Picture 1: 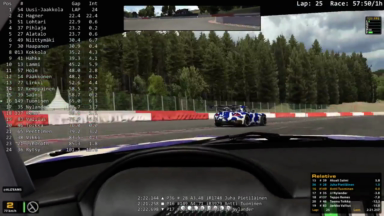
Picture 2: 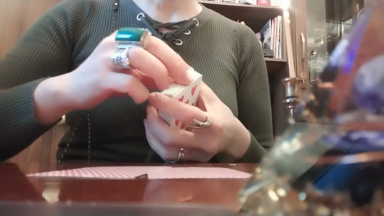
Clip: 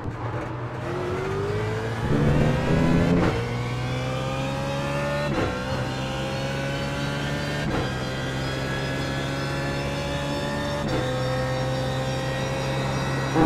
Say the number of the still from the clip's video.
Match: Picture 1